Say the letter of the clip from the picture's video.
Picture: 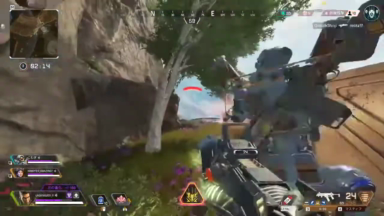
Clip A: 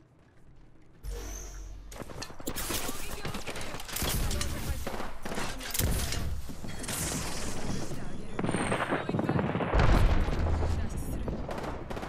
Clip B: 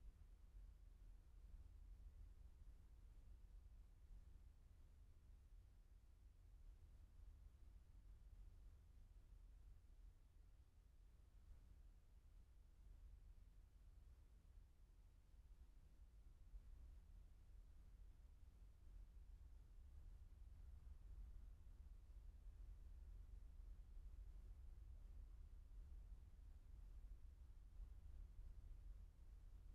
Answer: A